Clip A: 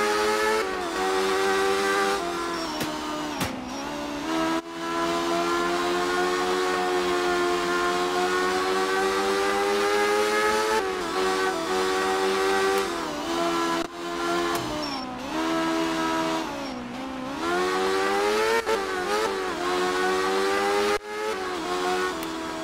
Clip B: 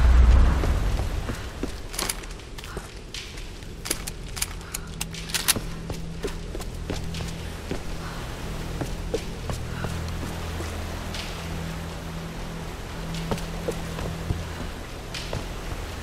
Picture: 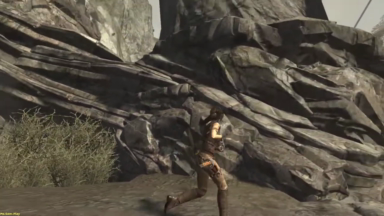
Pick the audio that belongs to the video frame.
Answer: B